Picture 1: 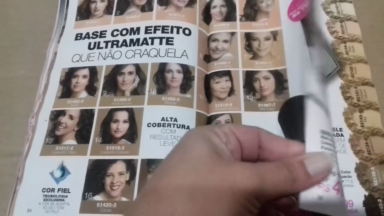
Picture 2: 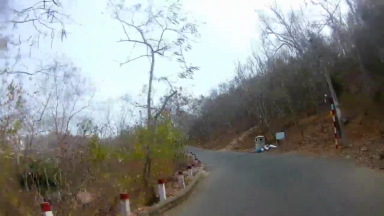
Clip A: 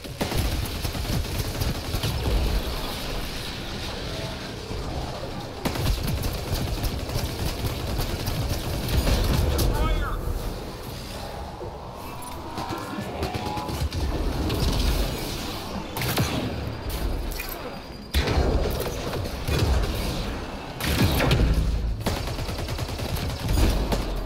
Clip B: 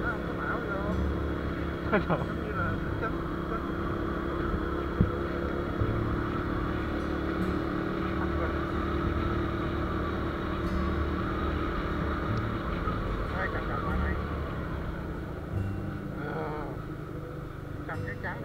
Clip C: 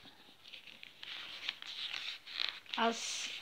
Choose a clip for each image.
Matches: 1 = C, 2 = B